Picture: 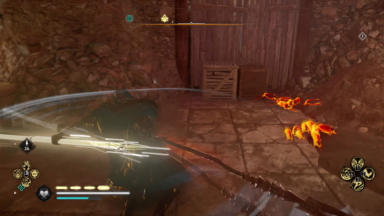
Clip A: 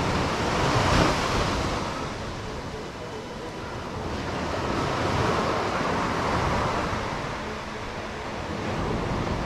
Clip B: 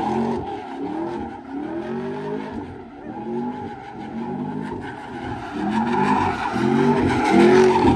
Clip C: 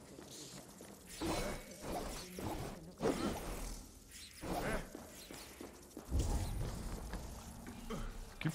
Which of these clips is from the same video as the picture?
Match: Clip C